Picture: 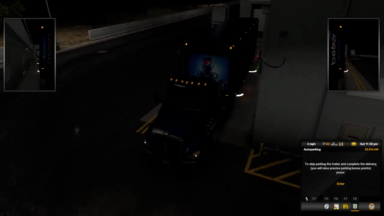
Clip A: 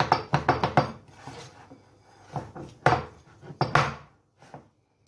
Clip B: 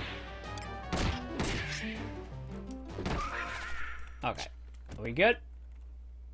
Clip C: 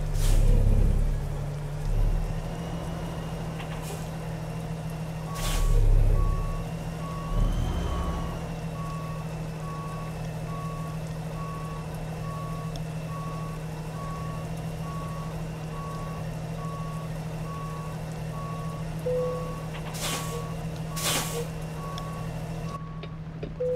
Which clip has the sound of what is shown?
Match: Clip C